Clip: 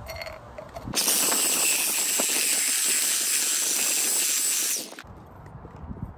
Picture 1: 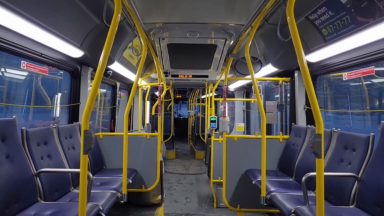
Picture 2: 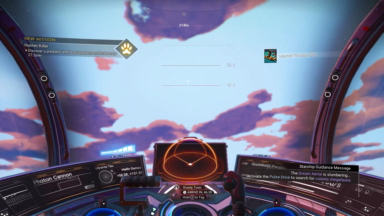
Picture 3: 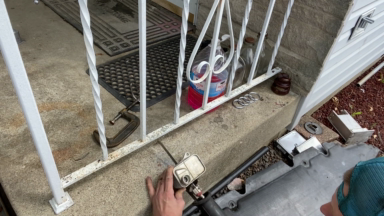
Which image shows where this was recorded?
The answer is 3